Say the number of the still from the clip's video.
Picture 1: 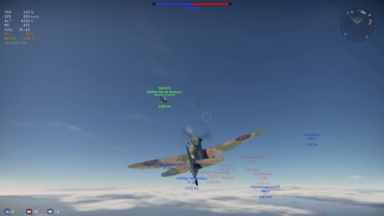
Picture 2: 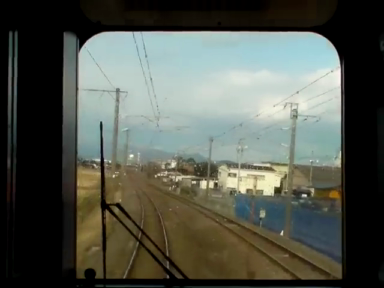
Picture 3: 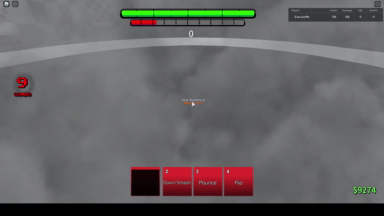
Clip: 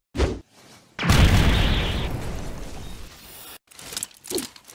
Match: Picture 3